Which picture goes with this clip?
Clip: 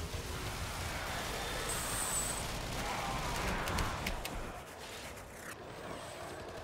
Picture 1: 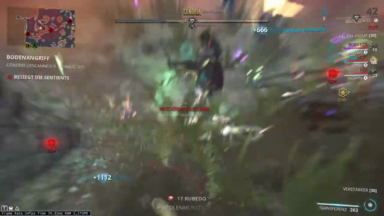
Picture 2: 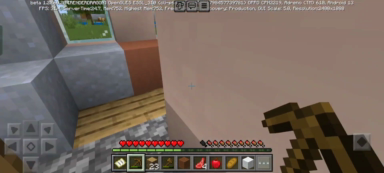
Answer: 1